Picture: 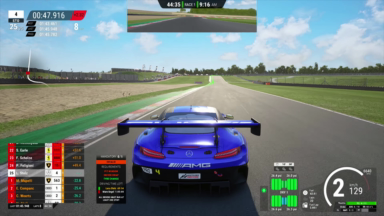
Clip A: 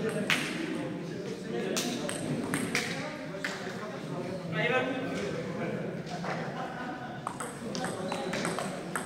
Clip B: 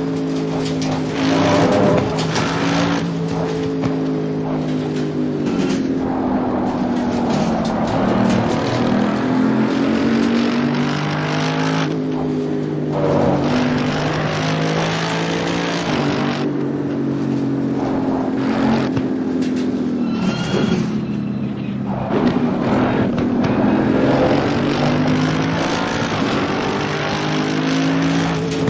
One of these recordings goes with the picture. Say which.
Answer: B